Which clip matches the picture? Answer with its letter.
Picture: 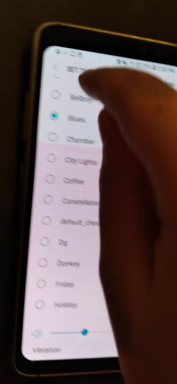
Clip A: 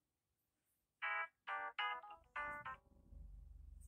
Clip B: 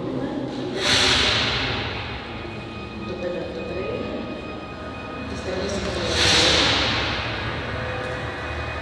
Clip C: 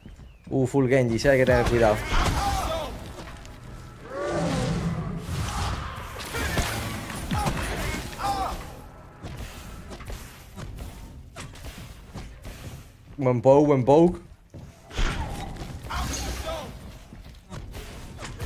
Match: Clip A